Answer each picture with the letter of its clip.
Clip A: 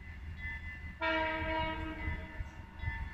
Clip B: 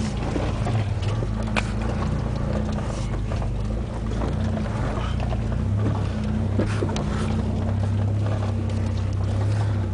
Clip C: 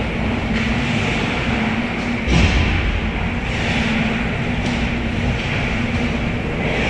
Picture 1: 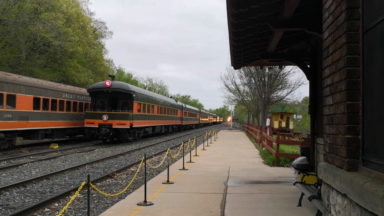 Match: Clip A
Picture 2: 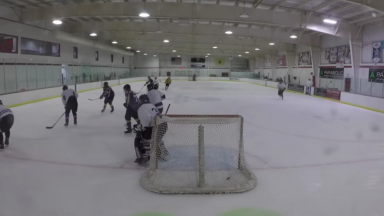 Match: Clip C